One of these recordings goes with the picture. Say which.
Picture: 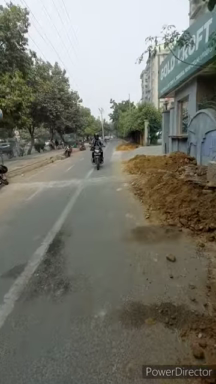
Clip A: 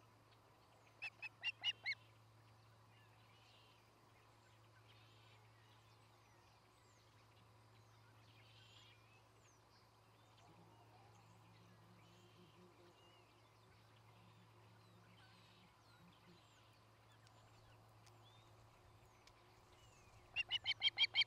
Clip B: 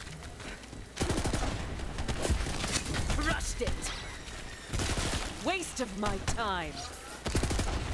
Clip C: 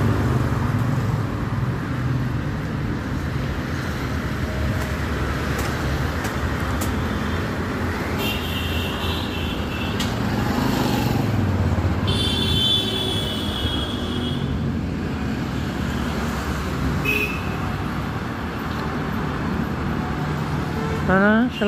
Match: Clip C